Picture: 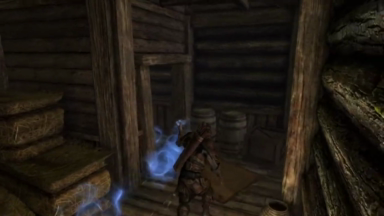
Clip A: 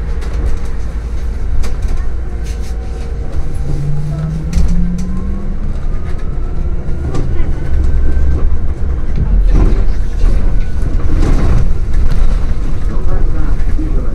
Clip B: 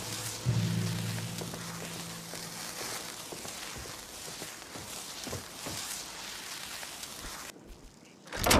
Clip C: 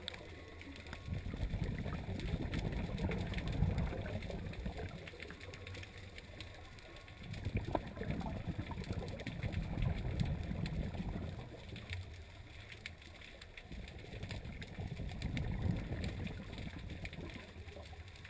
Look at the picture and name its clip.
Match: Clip B